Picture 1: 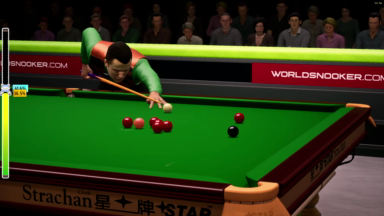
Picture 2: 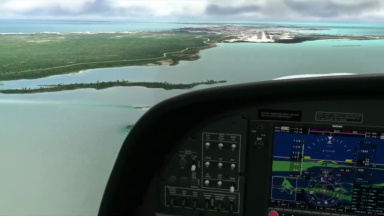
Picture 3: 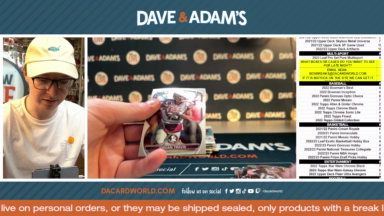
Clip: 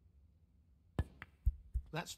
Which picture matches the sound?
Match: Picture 1